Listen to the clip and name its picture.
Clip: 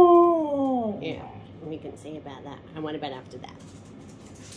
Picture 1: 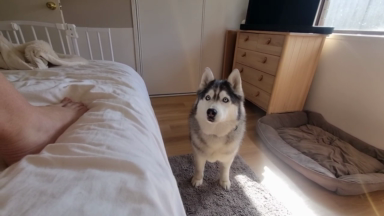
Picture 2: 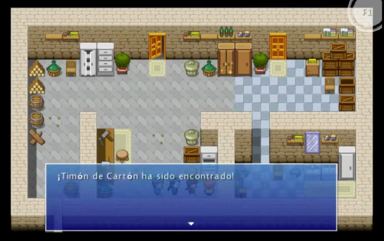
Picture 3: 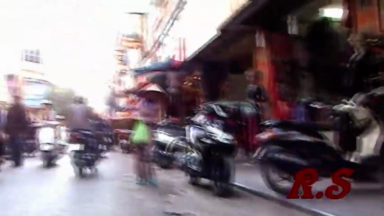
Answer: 1